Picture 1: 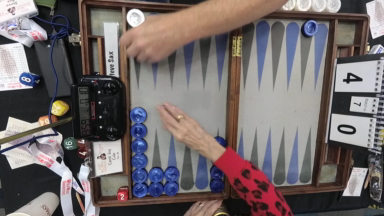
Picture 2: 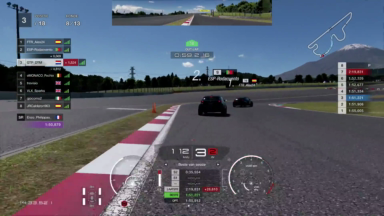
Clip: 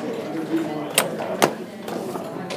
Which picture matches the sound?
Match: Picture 1